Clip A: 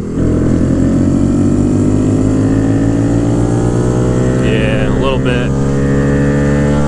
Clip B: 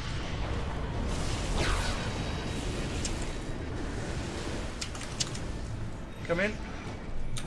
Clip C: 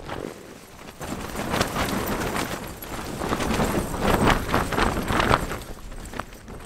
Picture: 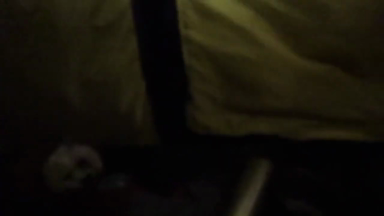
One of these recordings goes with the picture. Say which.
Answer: C